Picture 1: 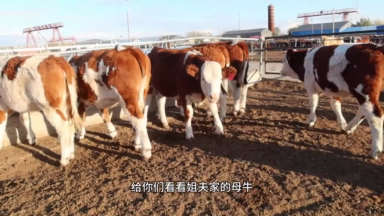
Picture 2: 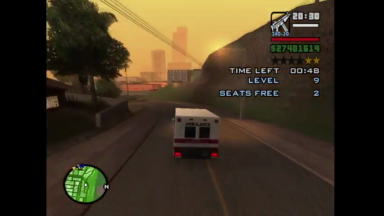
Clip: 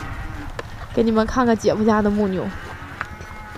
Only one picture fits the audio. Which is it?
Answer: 1